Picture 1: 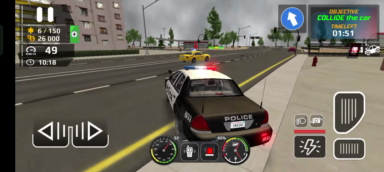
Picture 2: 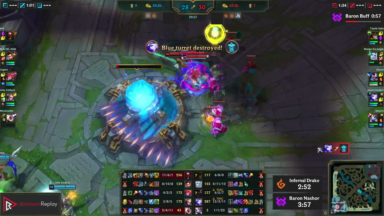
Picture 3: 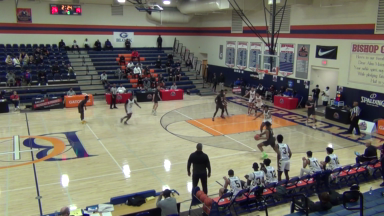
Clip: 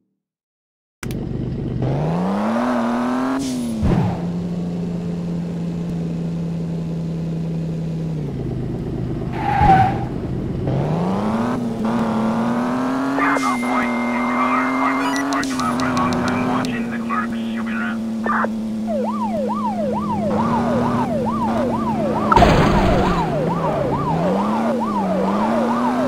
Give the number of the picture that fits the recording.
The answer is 1